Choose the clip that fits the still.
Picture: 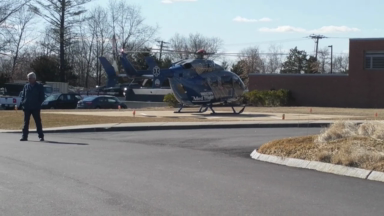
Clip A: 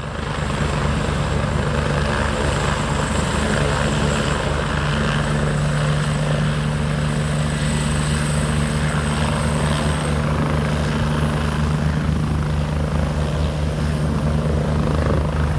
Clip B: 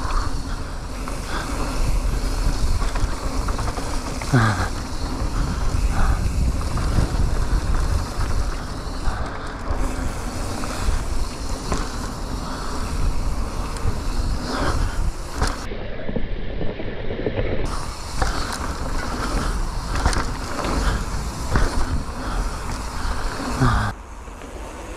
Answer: A